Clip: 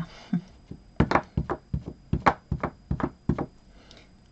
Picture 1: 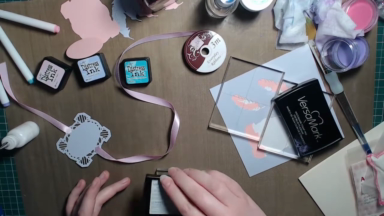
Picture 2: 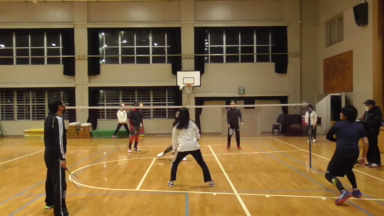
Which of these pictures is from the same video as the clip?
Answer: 1